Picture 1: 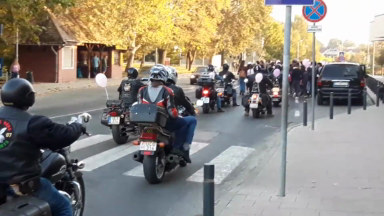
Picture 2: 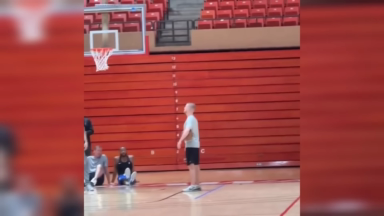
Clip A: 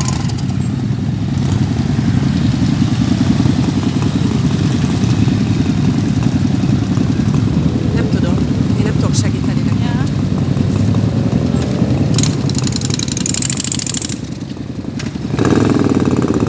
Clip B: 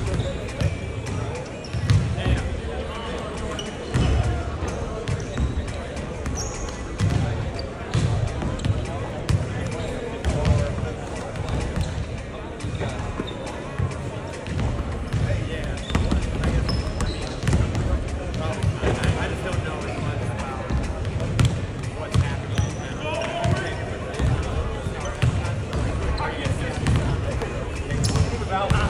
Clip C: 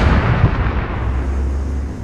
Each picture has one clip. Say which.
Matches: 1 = A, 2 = B